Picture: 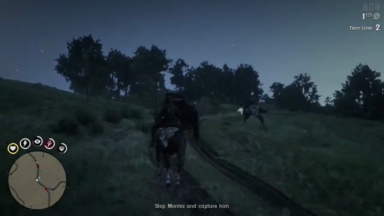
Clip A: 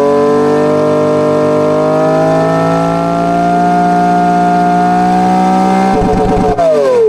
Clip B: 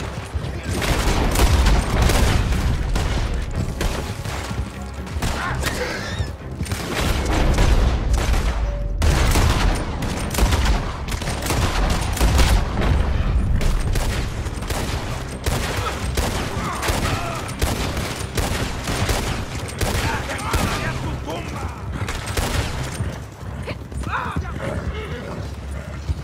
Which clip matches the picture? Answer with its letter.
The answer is B